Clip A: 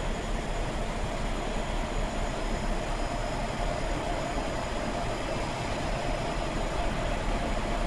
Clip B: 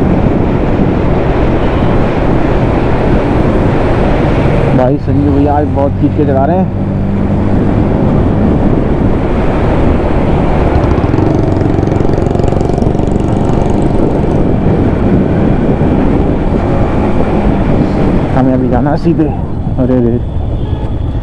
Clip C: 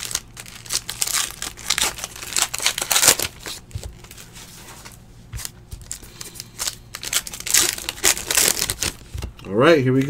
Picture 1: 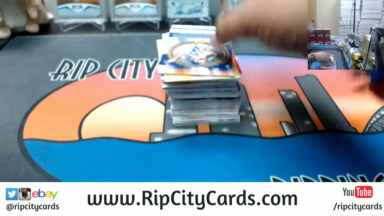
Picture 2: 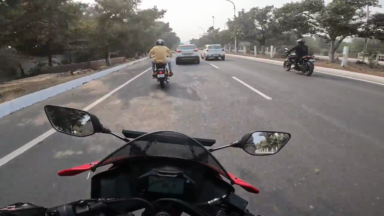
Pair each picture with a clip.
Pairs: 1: C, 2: B